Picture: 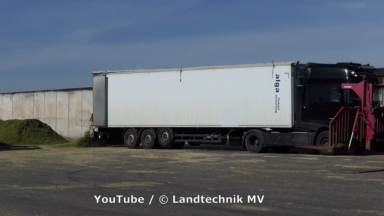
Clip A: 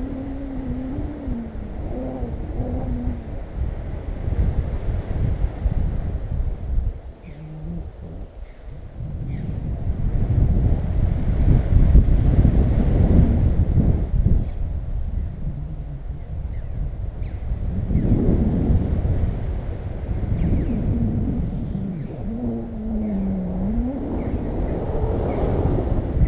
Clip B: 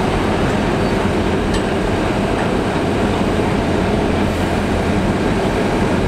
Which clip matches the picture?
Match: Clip B